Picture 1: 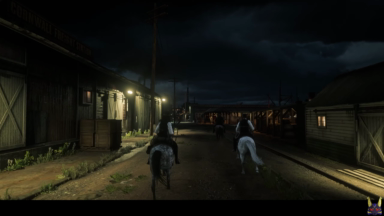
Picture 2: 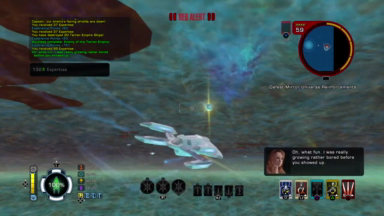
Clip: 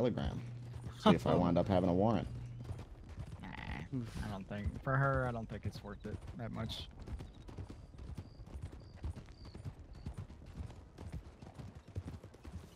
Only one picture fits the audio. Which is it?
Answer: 1